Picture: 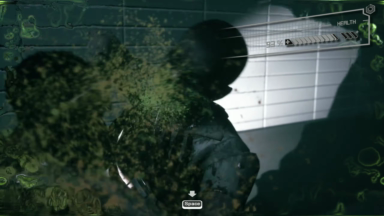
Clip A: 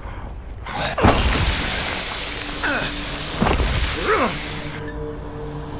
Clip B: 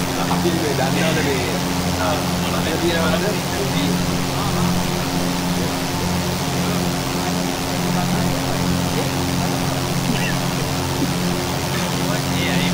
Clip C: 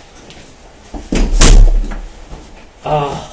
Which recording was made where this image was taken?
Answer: A